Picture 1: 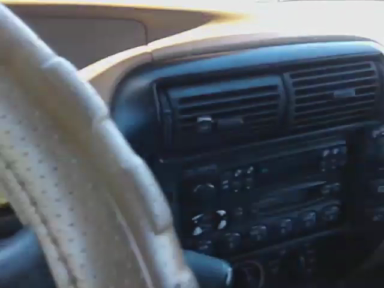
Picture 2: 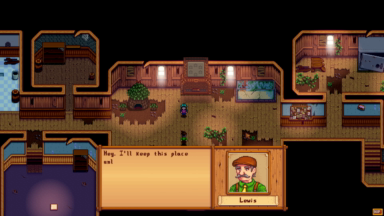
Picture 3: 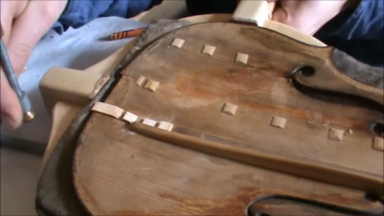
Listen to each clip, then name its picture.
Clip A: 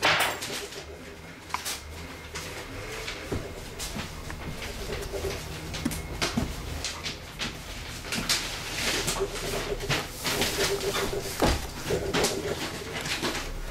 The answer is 3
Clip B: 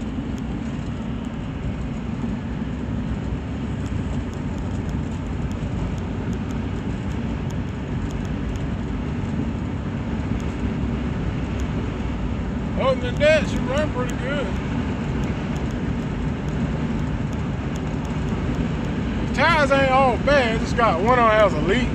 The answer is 1